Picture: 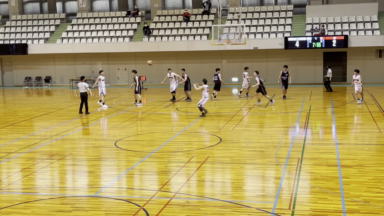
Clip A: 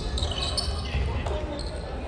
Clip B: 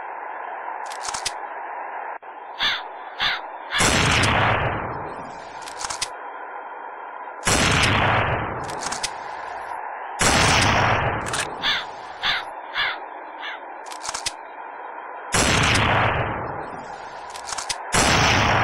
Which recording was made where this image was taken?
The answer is A